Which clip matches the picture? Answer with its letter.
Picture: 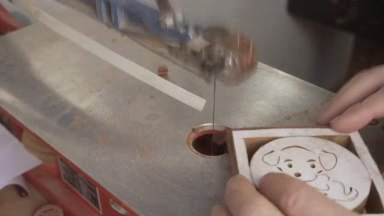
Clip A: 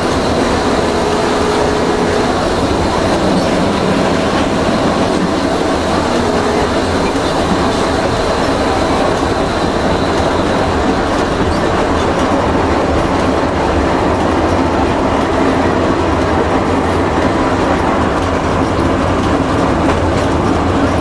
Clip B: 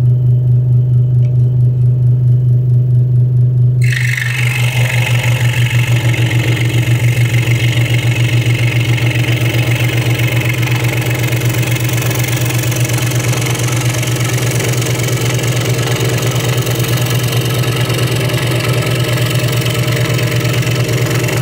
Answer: B